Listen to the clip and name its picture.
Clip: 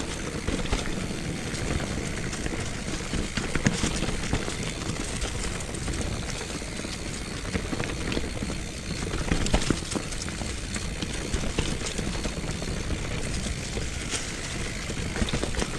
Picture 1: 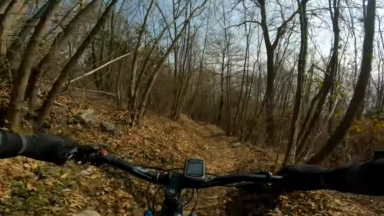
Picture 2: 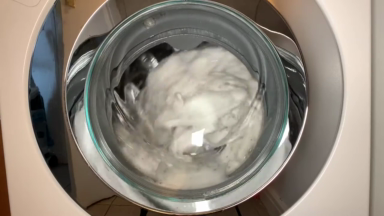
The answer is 1